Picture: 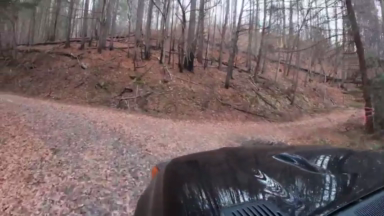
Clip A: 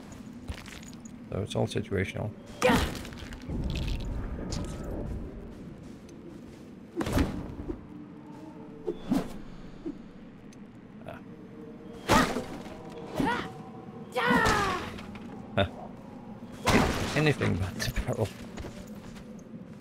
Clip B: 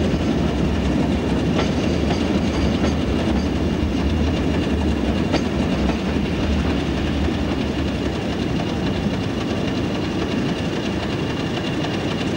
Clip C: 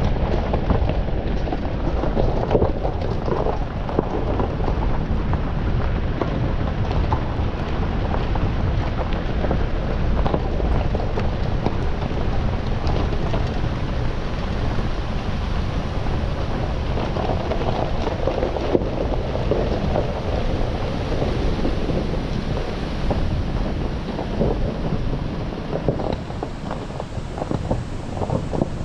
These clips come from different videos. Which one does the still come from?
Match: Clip C